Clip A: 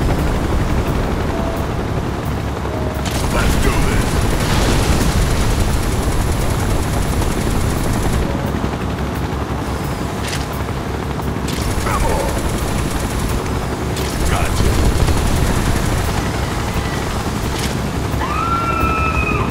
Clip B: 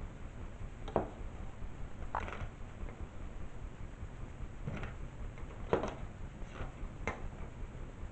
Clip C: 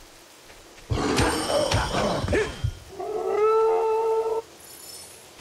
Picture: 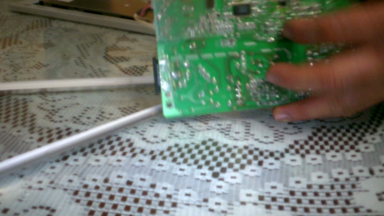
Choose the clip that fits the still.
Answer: B